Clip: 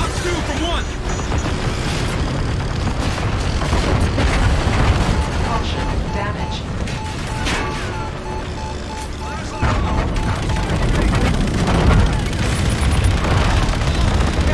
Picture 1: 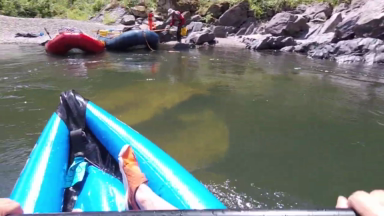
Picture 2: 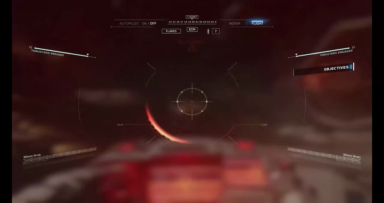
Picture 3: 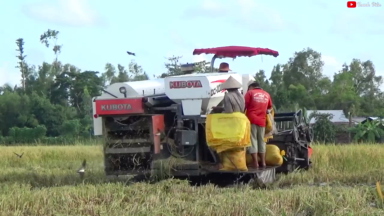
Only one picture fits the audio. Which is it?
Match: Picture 2